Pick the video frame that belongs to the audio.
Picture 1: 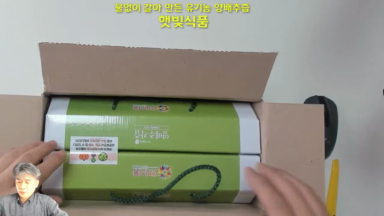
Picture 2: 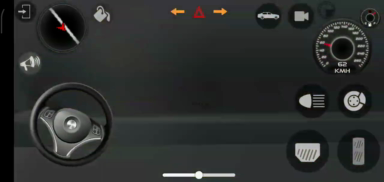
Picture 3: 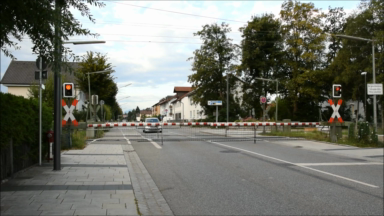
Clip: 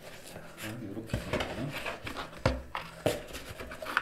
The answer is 1